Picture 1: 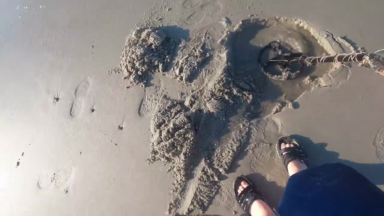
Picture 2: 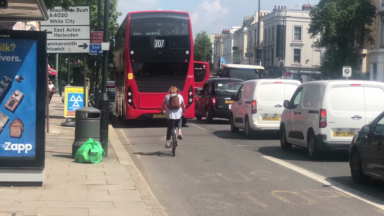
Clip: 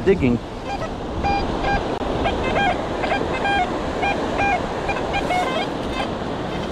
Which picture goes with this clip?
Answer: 1